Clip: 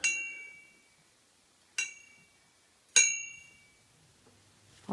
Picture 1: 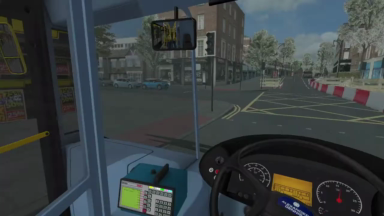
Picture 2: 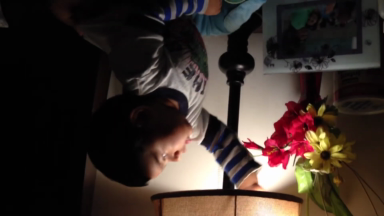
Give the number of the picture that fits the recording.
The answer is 2